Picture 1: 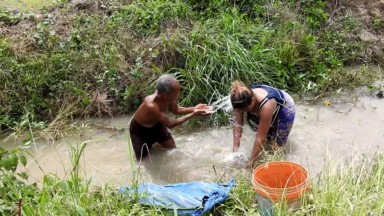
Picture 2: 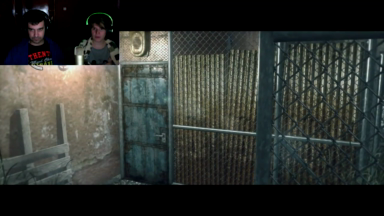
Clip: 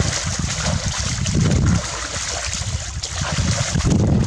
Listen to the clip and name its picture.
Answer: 1